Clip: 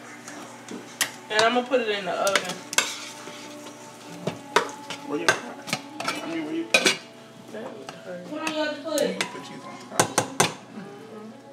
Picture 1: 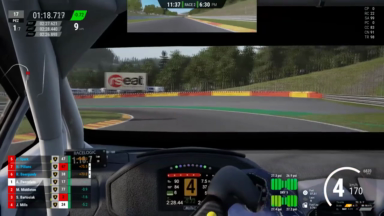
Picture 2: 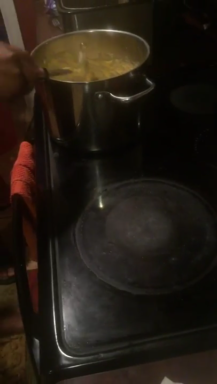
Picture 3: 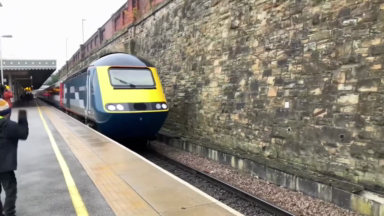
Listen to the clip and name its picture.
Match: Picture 2